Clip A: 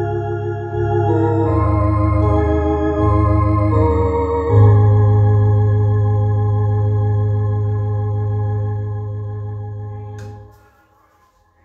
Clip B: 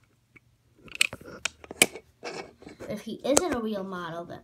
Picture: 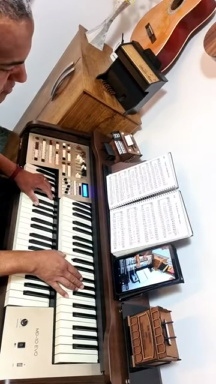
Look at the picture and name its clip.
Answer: A